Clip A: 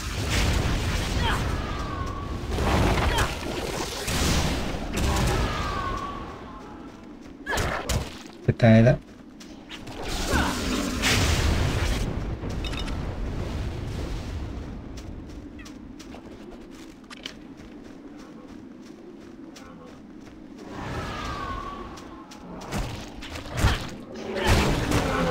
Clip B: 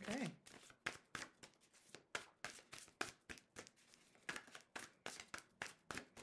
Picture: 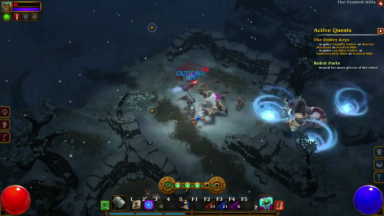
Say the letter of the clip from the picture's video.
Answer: A